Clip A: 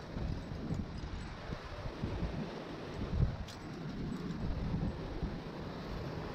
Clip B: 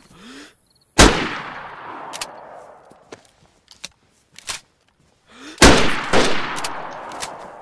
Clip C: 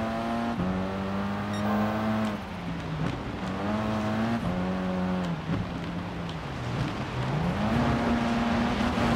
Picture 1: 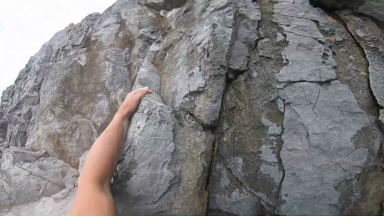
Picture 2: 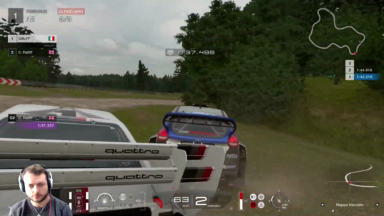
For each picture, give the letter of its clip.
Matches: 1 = A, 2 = C